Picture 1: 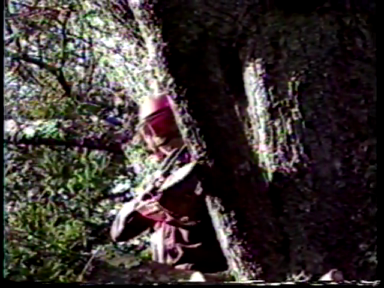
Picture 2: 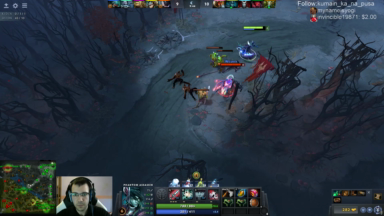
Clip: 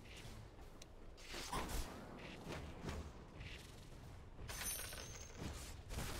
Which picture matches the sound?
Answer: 2